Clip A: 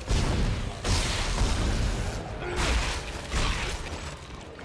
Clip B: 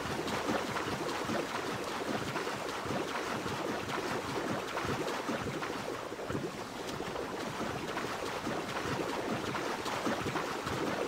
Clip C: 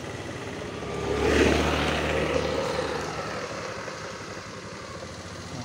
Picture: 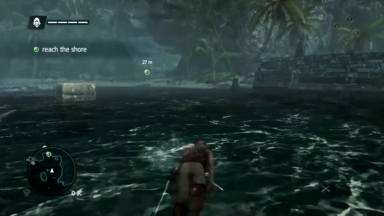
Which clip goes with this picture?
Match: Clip B